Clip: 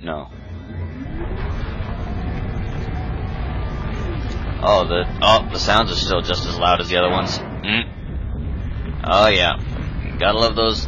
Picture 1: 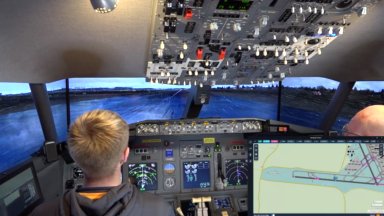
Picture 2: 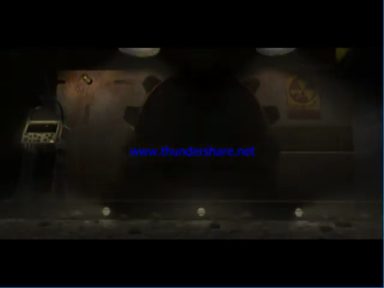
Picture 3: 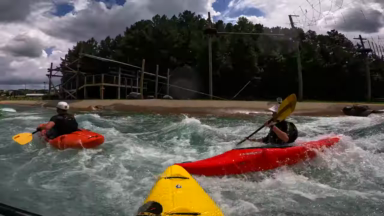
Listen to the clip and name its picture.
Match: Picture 2